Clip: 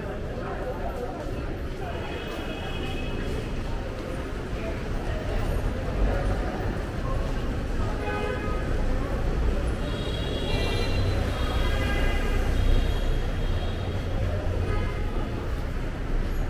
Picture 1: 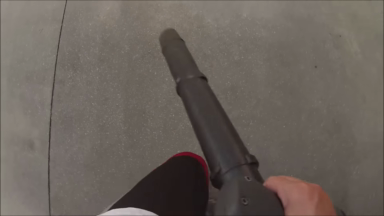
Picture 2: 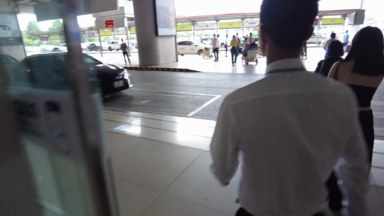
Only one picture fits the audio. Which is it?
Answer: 2